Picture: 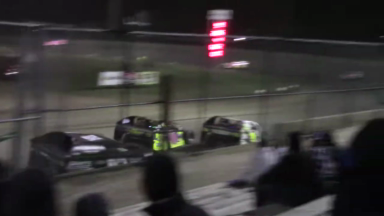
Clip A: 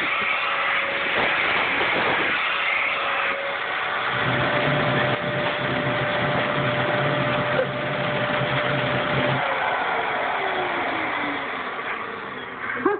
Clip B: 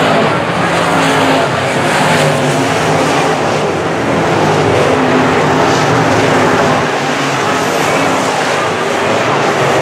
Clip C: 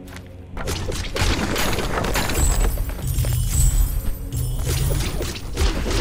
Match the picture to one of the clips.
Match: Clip B